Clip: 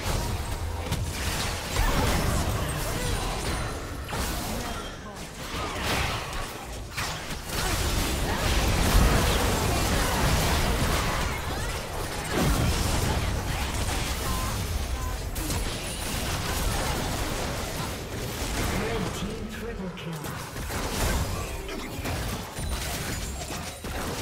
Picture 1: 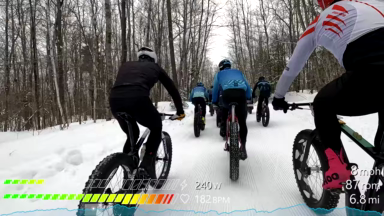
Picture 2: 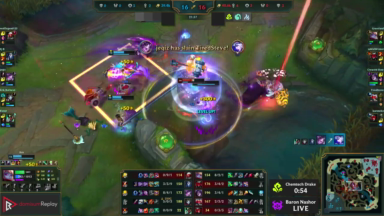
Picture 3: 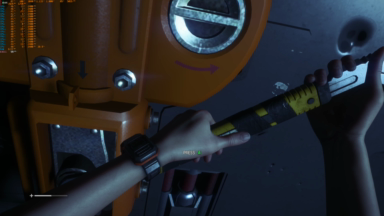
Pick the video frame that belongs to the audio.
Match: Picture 2